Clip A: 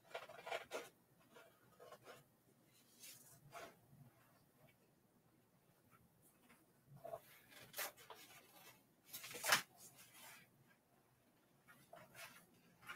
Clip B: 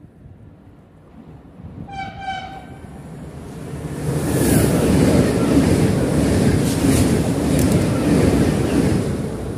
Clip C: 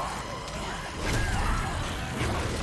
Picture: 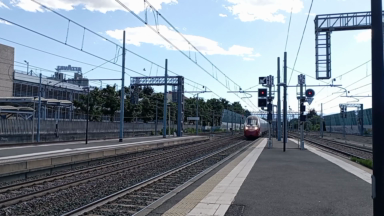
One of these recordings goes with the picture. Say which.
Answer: B